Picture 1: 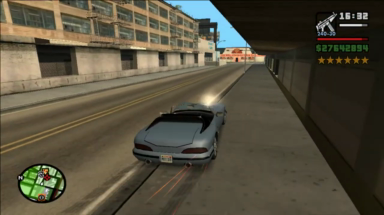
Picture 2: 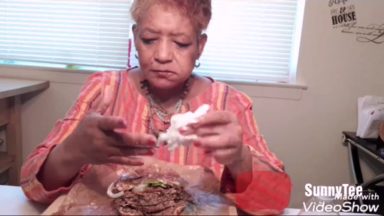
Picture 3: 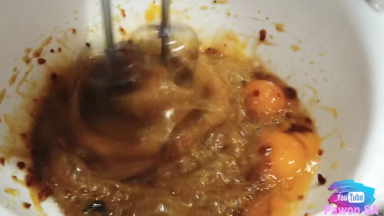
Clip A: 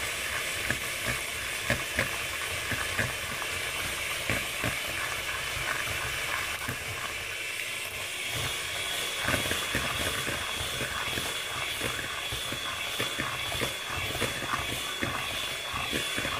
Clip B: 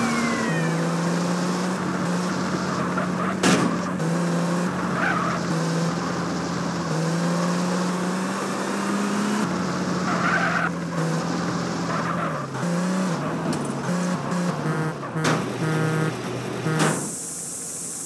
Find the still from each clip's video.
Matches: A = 3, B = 1